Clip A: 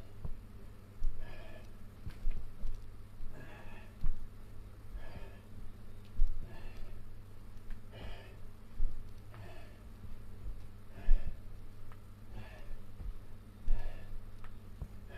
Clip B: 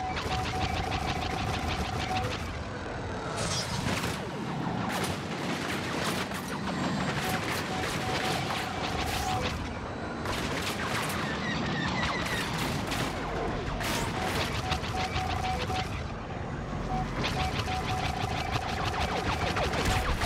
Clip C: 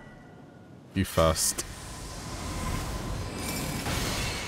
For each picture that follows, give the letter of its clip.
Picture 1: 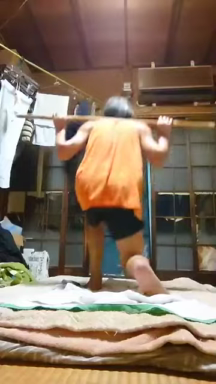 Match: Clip A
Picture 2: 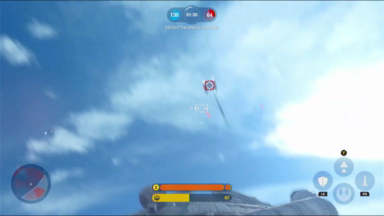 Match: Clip B